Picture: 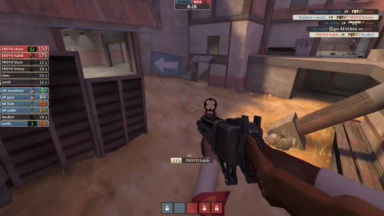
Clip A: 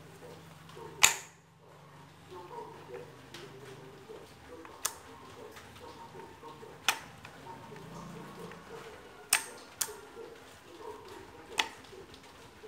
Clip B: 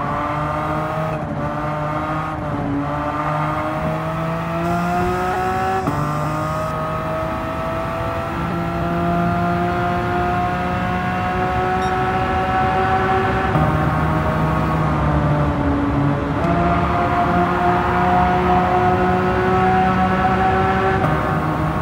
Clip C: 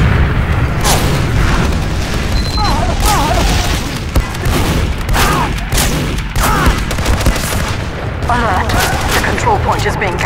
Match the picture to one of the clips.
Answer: C